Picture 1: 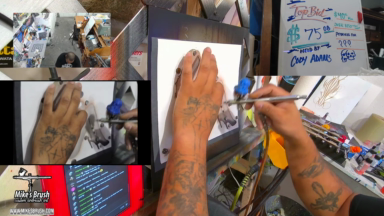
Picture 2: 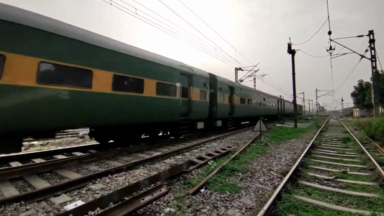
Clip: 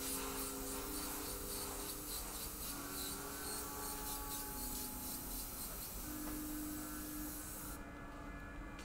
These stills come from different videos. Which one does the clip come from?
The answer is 1